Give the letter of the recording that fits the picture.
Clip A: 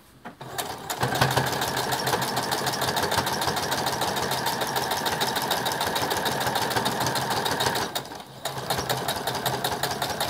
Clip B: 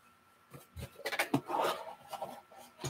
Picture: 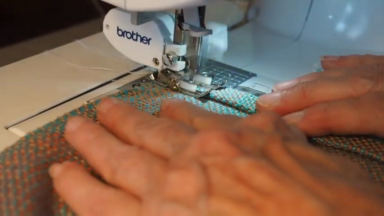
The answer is A